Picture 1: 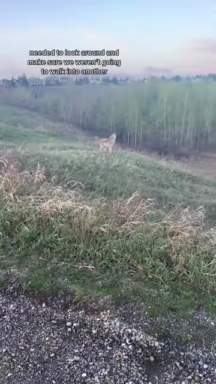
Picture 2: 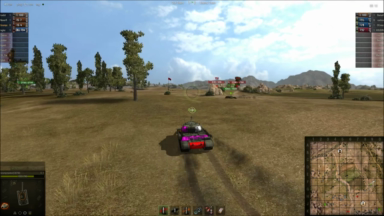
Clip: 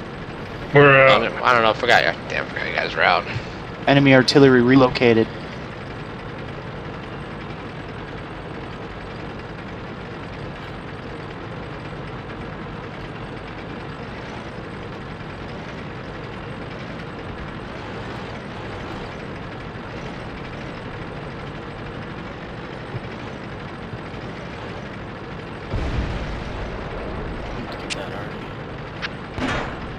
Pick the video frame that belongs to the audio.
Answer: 2